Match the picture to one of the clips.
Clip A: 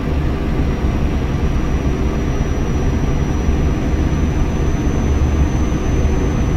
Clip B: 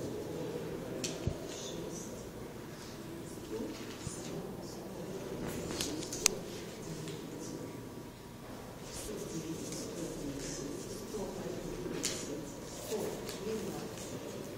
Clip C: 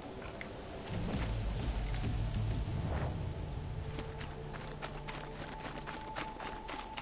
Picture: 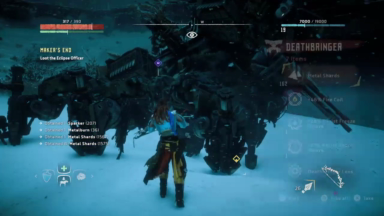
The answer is C